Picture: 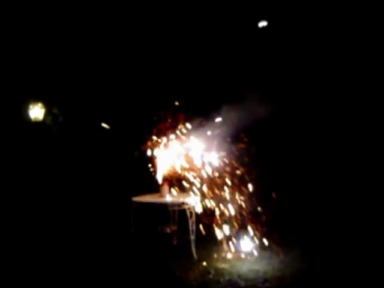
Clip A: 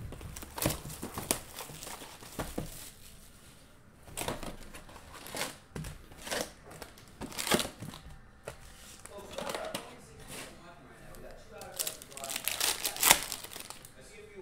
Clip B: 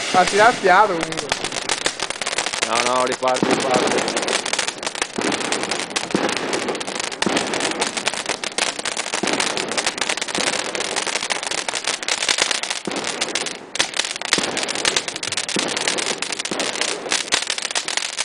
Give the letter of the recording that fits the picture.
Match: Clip B